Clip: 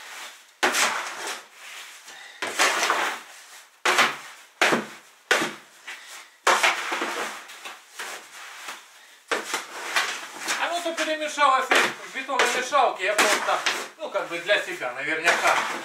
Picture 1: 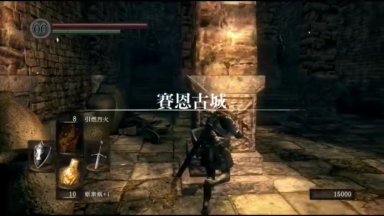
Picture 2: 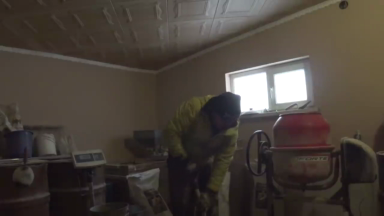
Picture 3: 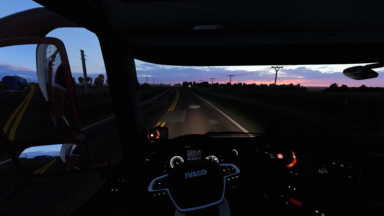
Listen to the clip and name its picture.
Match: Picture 2